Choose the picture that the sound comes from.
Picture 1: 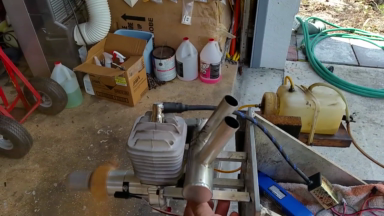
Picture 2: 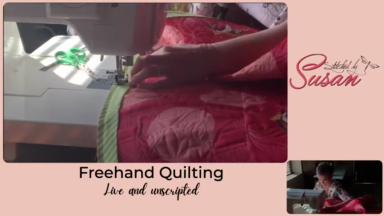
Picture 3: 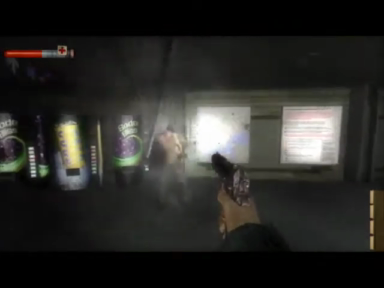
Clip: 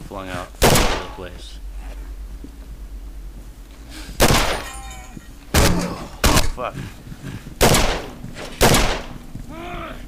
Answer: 3